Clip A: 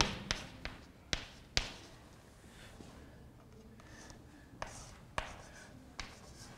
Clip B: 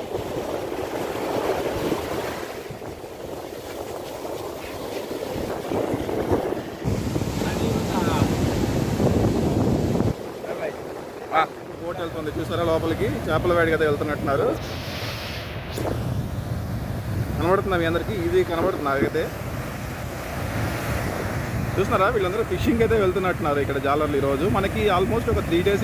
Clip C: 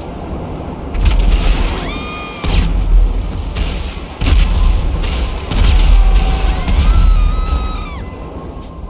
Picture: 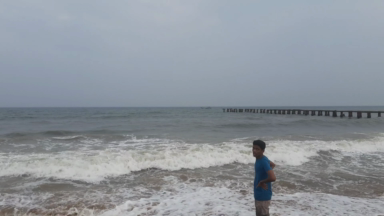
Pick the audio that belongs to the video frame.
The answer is B